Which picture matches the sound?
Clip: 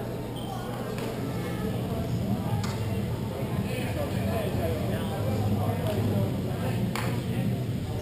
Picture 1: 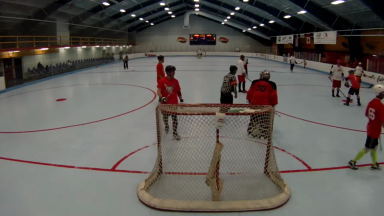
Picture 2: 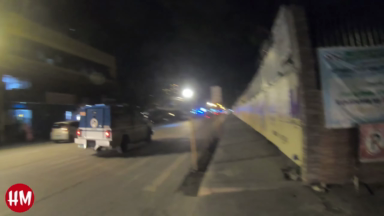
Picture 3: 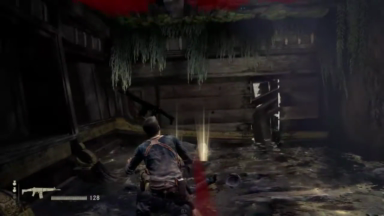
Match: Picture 1